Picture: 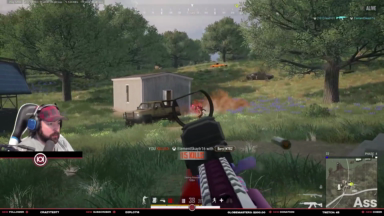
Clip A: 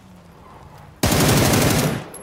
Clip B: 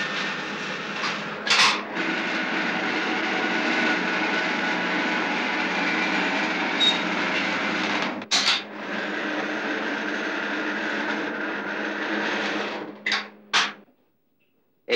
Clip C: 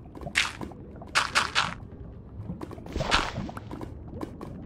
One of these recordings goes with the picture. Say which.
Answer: A